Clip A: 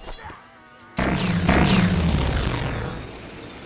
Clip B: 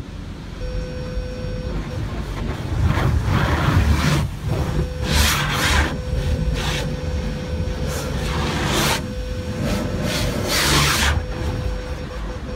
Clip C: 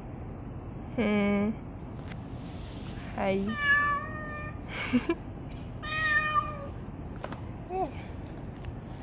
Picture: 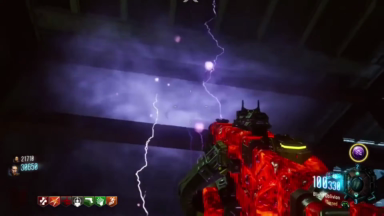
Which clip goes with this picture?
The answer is A